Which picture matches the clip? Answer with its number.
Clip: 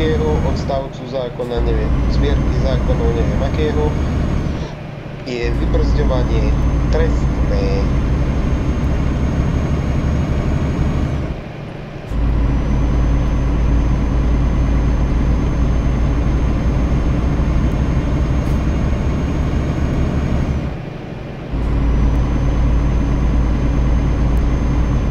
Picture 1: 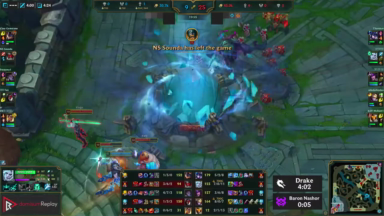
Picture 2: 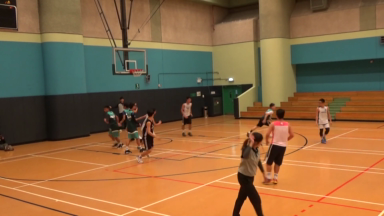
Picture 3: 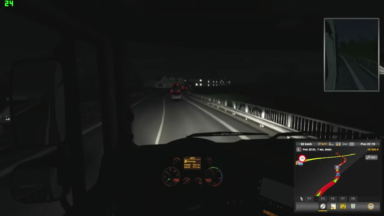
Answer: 3